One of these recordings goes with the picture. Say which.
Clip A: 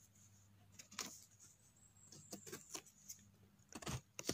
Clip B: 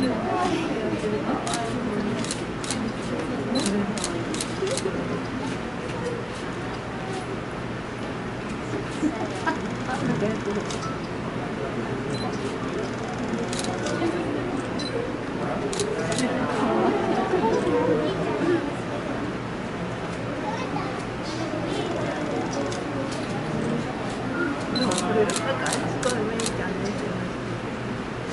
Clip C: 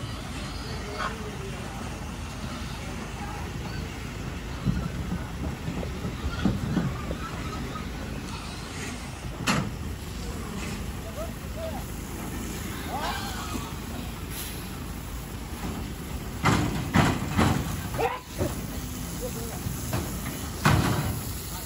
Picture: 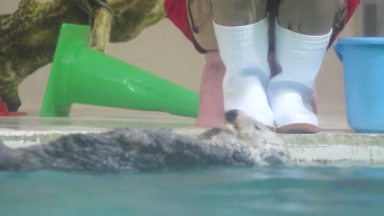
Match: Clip B